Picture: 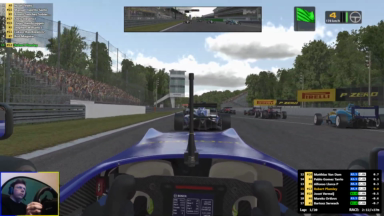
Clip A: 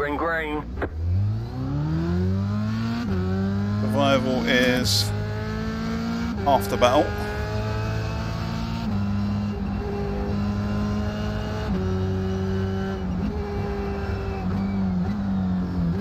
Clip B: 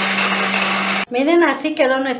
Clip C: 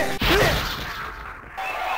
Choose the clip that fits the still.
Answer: A